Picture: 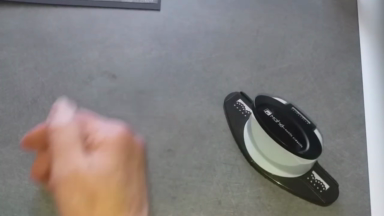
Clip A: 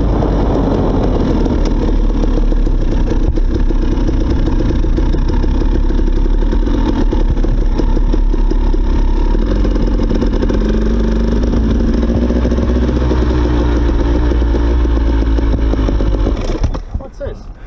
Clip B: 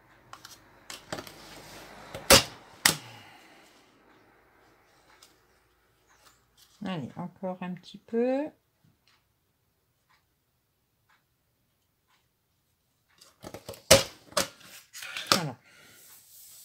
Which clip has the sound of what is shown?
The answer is B